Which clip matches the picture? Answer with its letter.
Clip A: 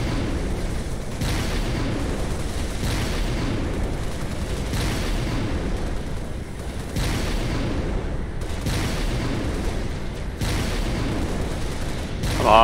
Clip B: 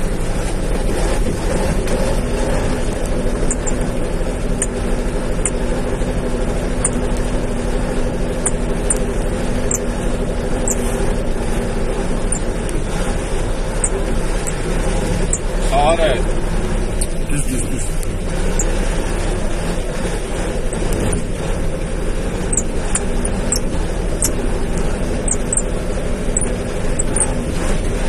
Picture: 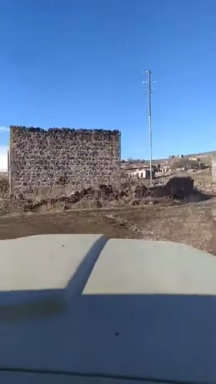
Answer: B